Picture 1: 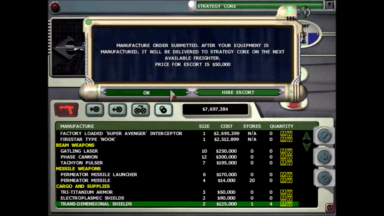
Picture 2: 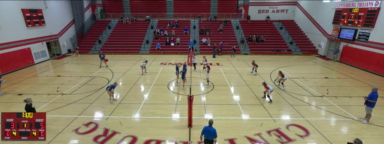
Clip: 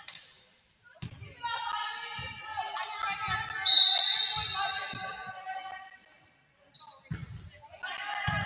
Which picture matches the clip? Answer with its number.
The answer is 2